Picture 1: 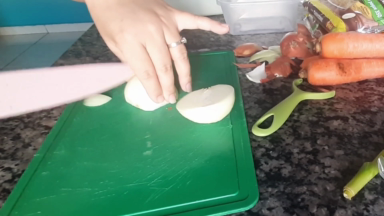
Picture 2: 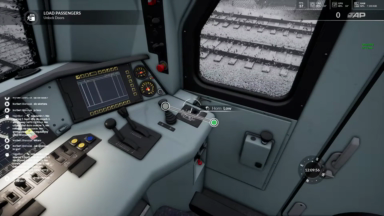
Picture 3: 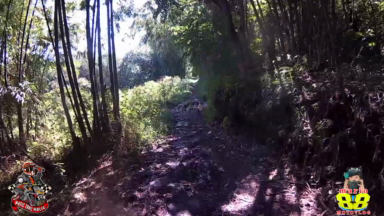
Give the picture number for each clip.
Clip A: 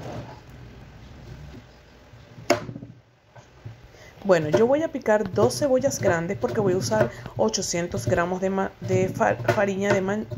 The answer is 1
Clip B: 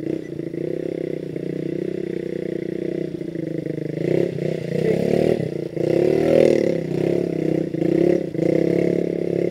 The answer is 3